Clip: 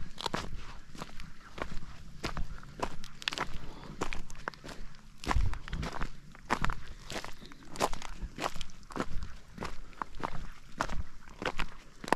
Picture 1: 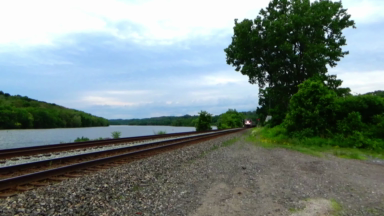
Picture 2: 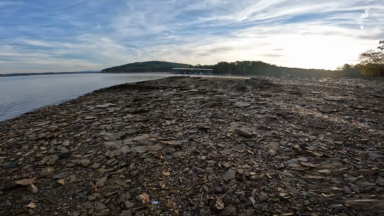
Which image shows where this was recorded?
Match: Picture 2